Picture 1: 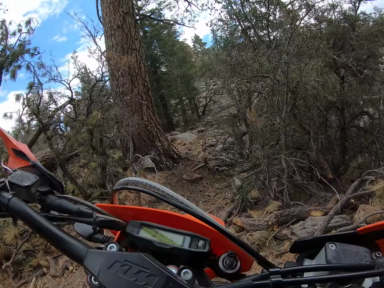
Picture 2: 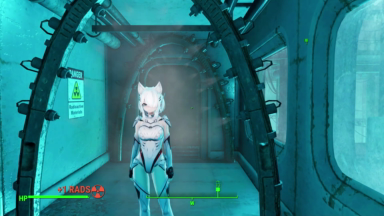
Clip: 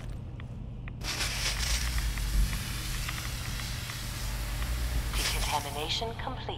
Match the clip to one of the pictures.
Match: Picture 2